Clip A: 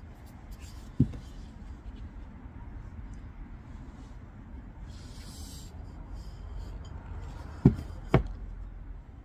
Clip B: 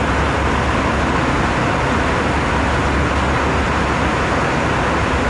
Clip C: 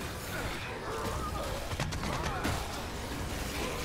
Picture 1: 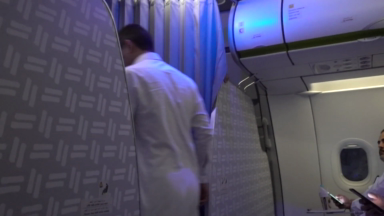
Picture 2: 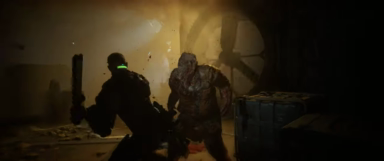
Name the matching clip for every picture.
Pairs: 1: B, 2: C